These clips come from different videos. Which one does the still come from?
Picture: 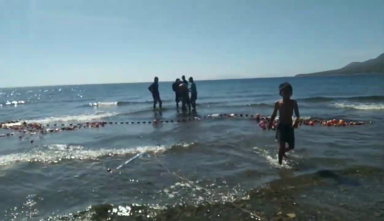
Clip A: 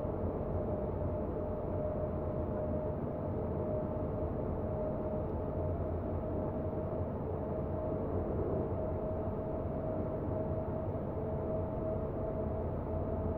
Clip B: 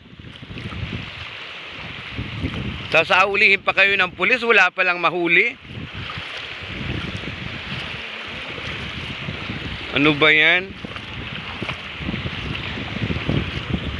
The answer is B